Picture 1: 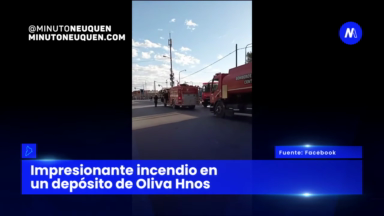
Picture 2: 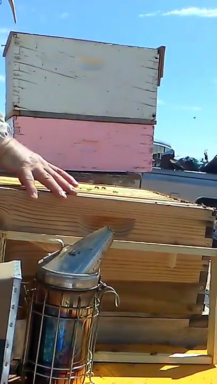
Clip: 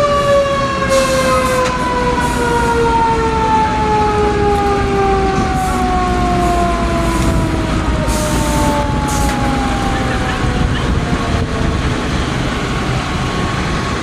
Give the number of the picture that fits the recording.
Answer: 1